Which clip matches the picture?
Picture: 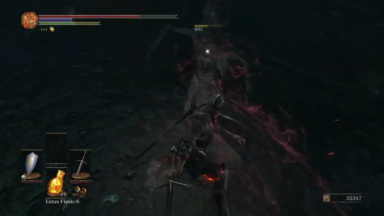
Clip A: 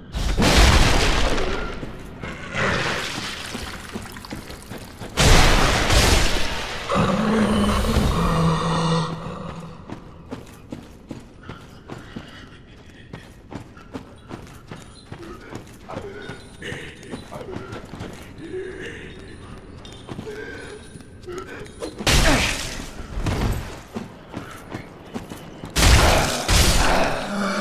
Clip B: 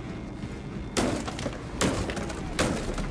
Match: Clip A